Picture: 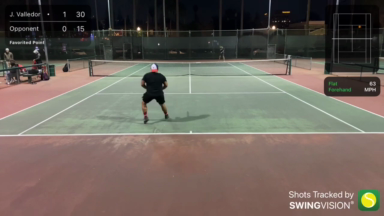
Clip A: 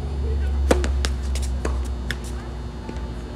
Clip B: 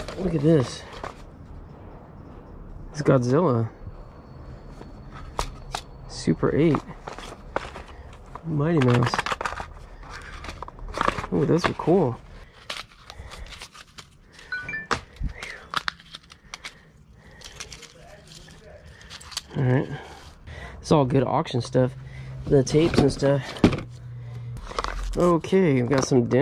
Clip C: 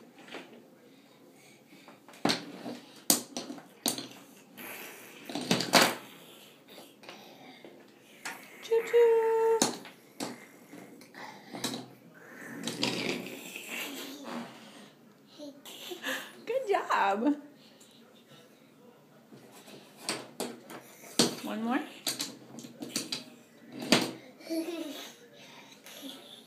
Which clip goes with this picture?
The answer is A